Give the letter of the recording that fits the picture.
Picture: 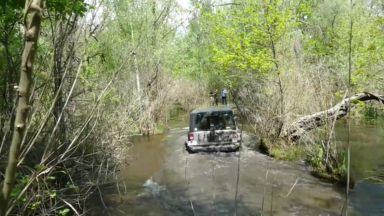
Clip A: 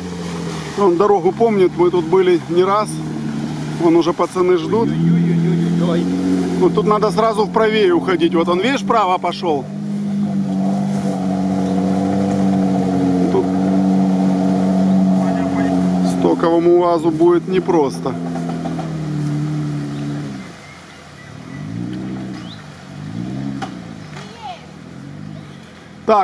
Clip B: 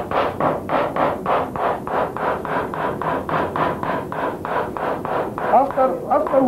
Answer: A